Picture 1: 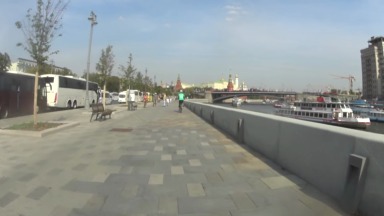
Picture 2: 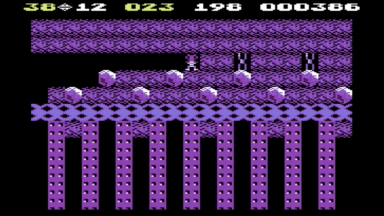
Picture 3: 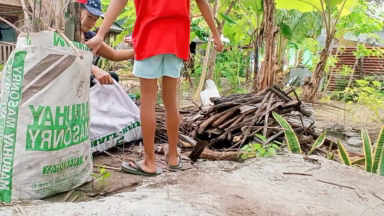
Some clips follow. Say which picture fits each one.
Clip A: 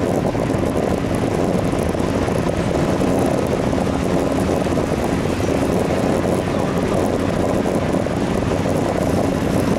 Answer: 1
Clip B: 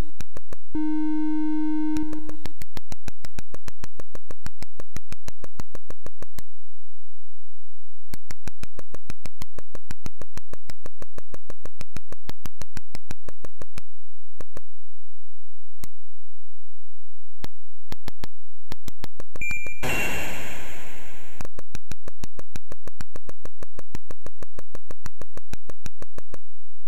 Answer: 2